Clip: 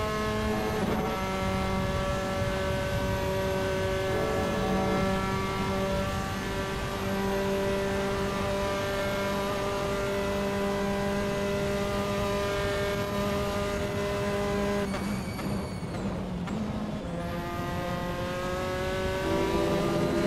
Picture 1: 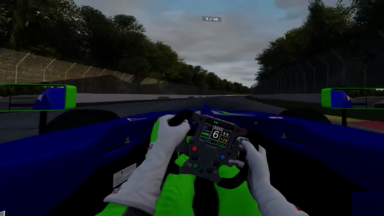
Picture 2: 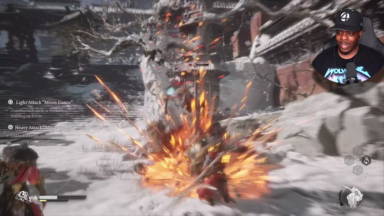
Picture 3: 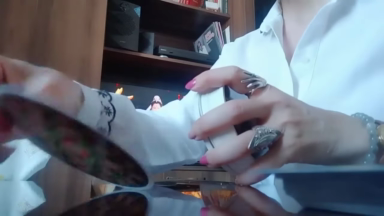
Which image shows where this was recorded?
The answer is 1